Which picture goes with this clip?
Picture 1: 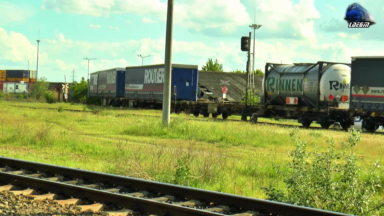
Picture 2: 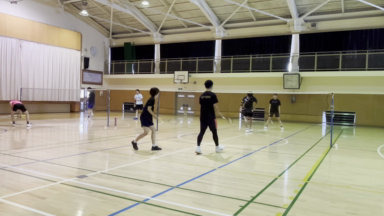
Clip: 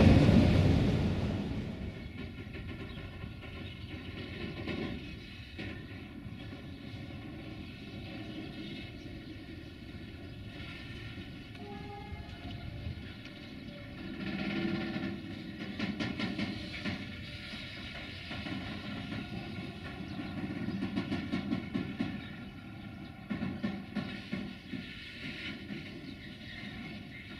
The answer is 1